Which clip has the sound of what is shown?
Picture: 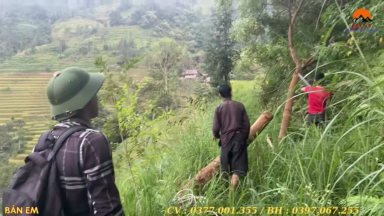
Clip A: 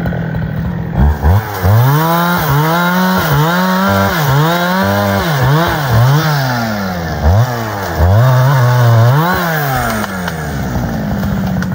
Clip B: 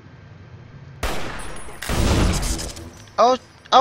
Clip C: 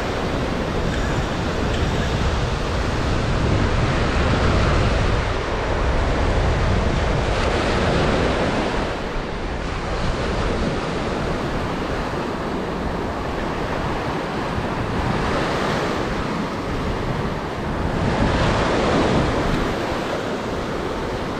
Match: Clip A